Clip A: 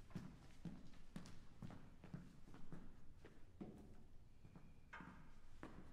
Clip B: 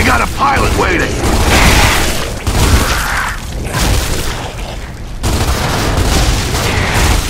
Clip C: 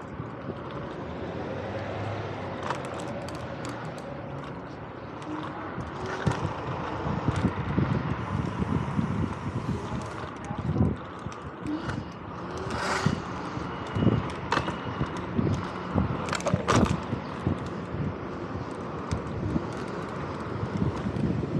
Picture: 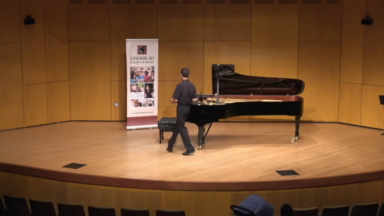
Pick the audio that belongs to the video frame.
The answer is A